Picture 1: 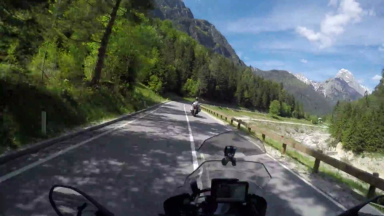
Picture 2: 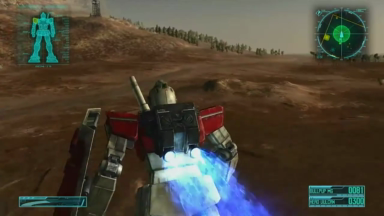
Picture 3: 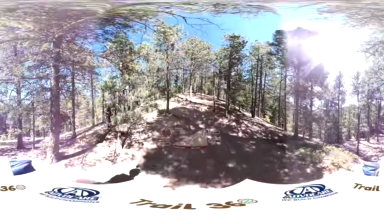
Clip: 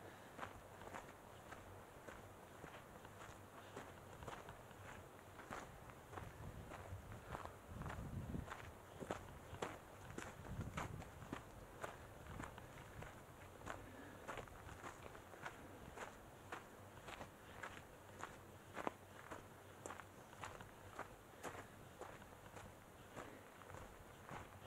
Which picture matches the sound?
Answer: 3